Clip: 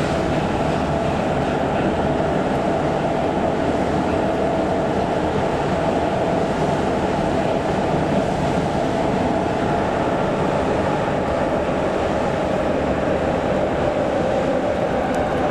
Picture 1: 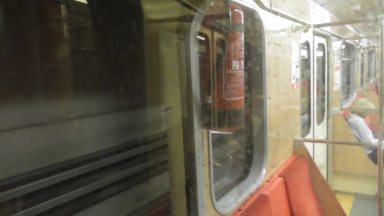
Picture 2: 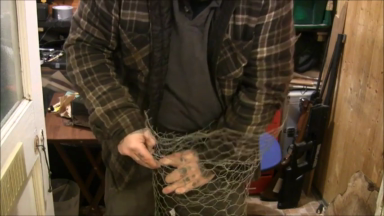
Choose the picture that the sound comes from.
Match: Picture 1